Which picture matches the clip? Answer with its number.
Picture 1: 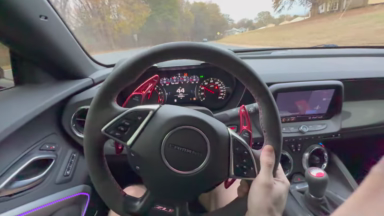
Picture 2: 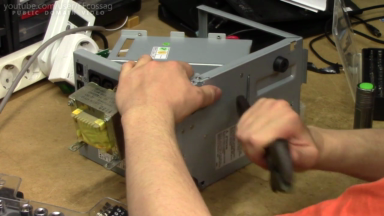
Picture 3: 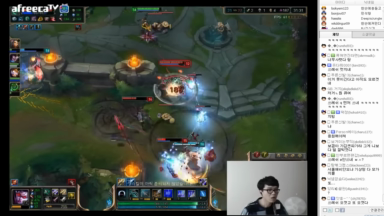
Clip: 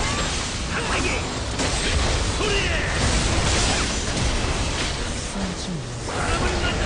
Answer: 3